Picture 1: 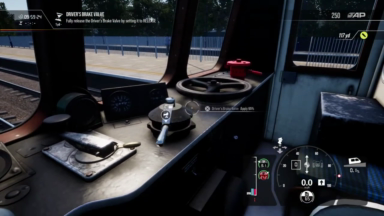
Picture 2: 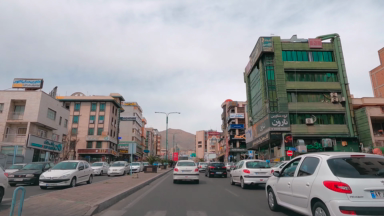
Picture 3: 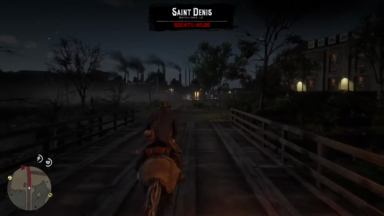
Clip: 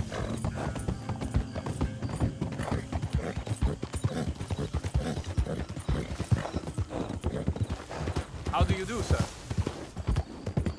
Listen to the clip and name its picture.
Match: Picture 3